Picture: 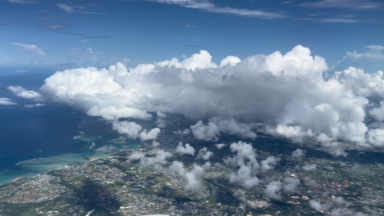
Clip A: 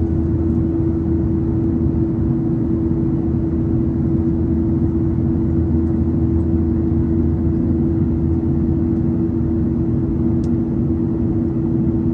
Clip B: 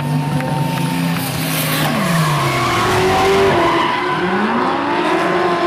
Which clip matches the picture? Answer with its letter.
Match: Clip A